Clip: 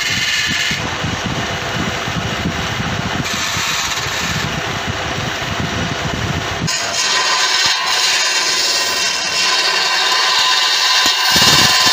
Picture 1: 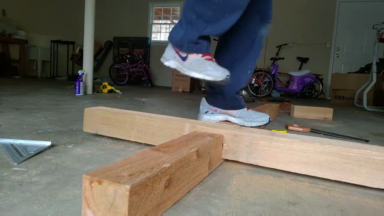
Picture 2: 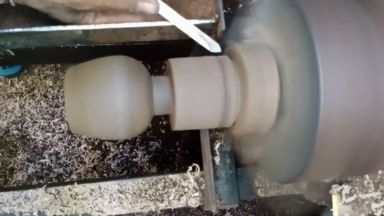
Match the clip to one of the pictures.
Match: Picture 2